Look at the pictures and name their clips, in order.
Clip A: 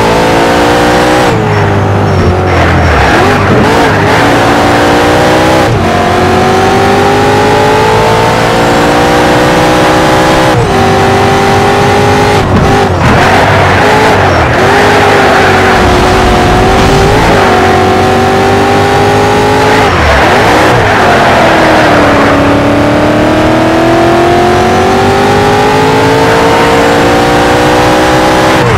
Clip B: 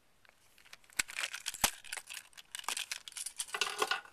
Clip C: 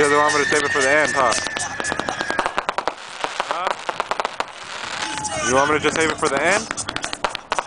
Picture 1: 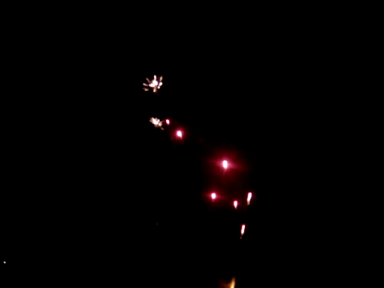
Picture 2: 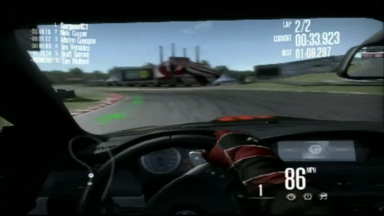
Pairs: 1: C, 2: A